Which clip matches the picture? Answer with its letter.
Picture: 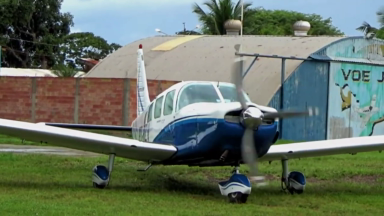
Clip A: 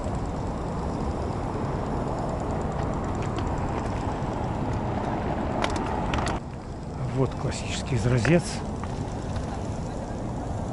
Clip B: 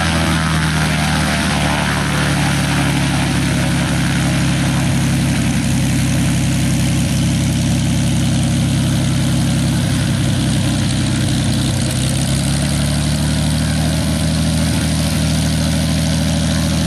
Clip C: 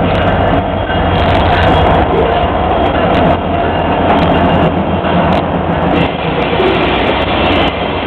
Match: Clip B